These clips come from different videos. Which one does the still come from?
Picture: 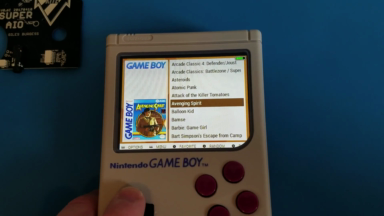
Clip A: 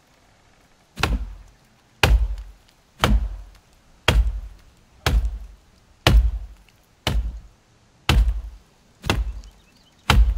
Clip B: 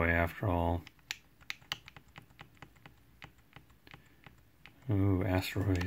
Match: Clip B